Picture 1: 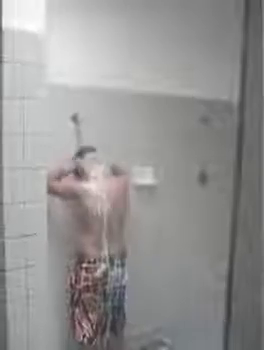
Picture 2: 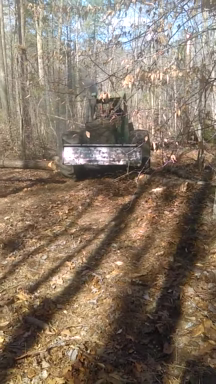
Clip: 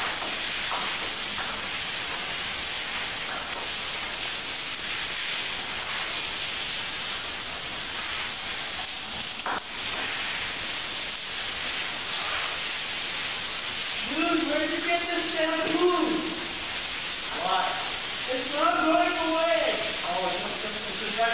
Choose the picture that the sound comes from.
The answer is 1